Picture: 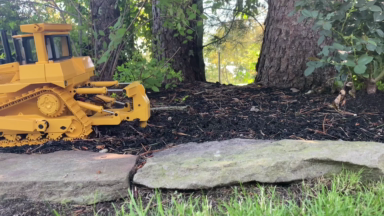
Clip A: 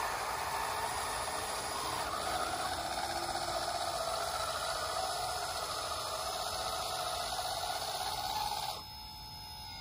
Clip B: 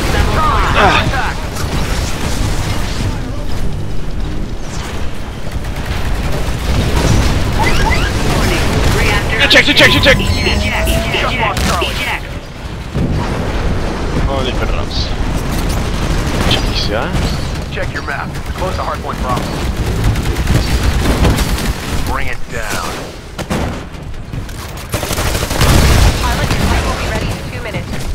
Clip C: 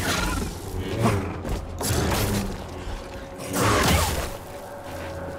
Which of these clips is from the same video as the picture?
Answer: A